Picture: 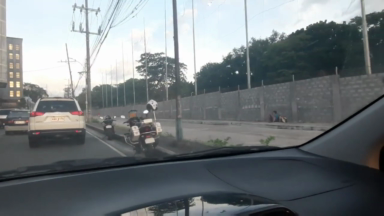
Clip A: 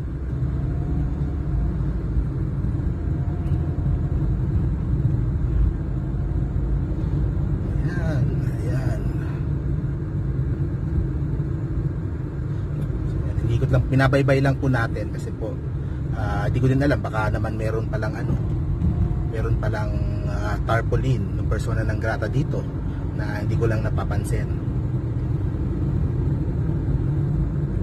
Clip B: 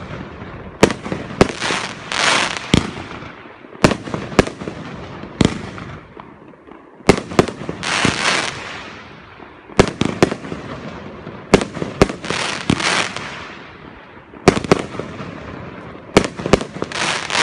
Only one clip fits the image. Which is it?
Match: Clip A